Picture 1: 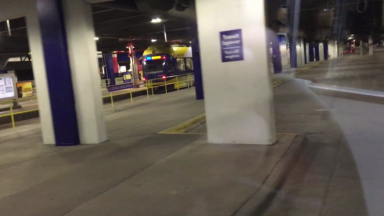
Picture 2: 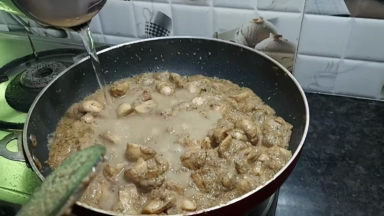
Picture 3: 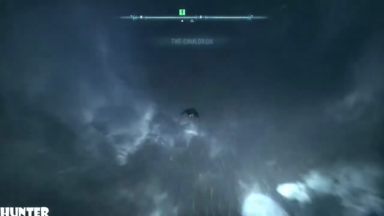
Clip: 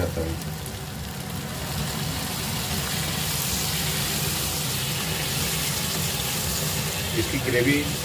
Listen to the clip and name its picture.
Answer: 2